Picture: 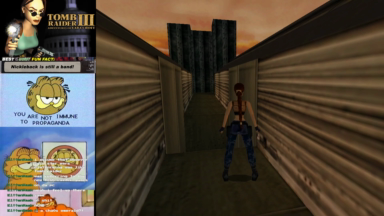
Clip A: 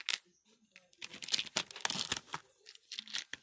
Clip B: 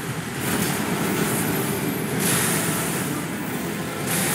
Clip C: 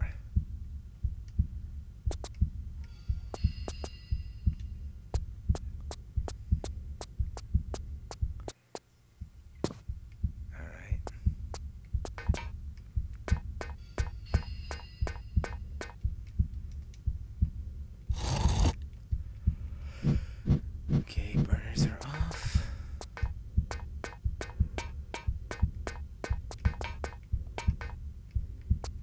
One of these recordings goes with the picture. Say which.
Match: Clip C